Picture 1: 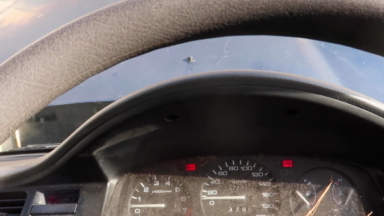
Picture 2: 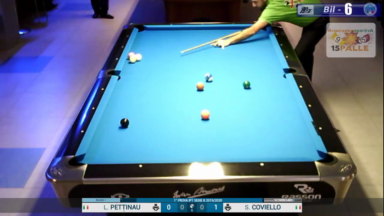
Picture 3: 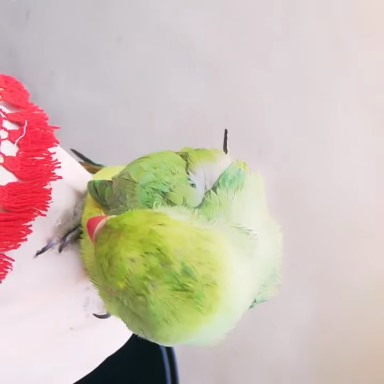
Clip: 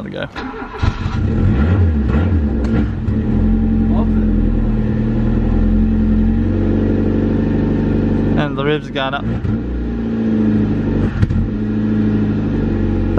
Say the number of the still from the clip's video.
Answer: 1